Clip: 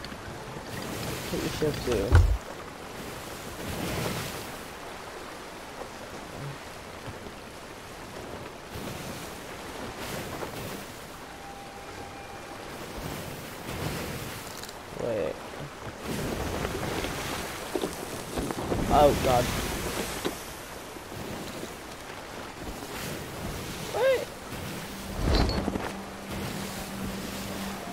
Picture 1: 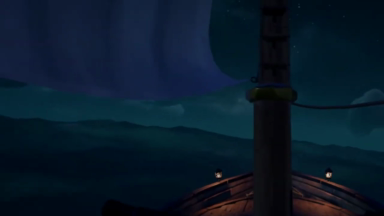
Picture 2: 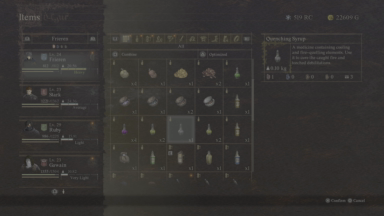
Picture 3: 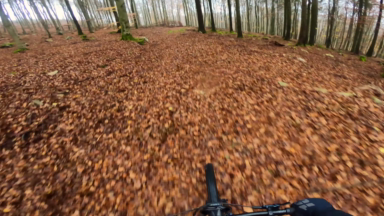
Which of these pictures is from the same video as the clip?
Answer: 1